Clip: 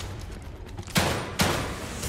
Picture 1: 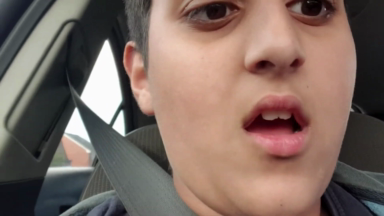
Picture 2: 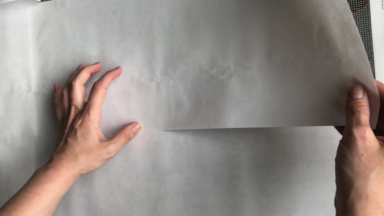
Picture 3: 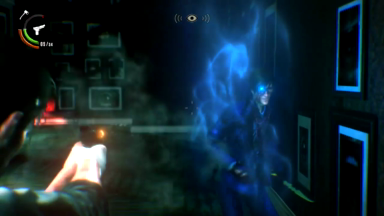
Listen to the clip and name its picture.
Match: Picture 3